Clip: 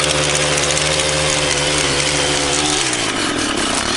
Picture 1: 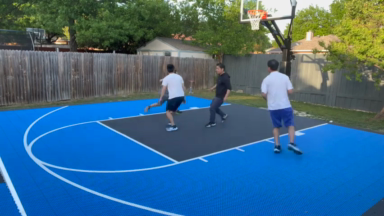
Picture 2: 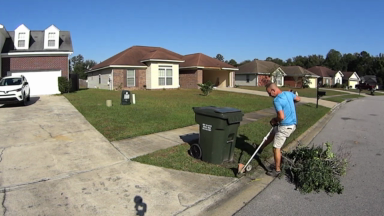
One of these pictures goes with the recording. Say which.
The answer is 2